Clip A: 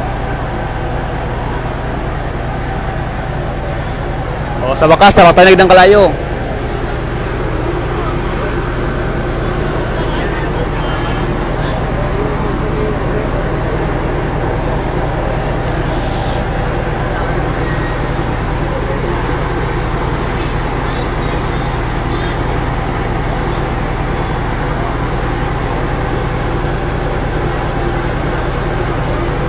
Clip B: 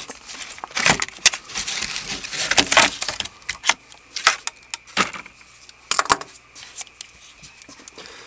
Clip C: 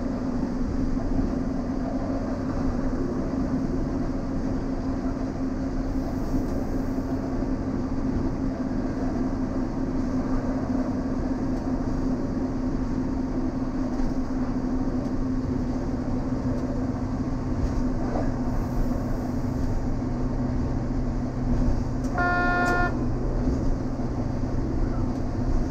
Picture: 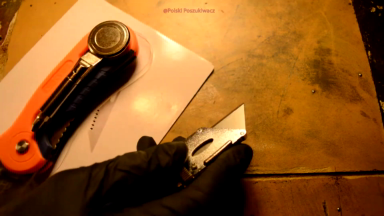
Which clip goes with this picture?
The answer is B